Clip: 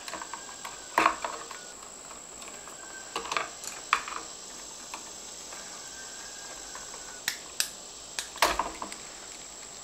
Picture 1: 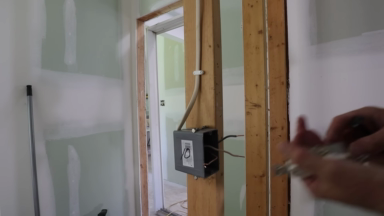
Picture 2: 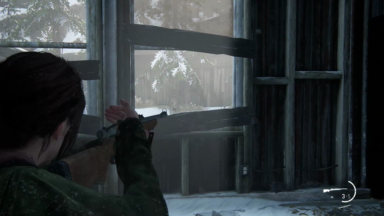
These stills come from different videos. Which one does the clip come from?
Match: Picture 1